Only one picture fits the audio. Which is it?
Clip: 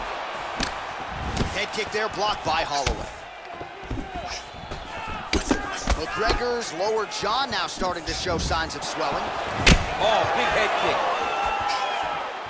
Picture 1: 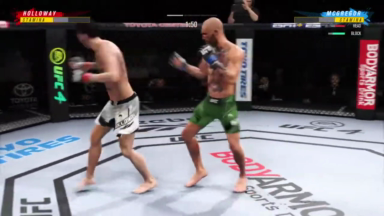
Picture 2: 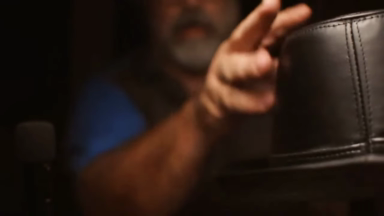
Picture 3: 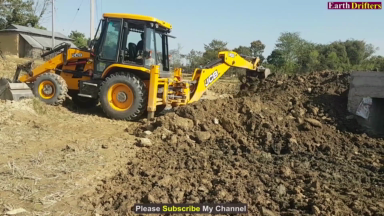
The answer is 1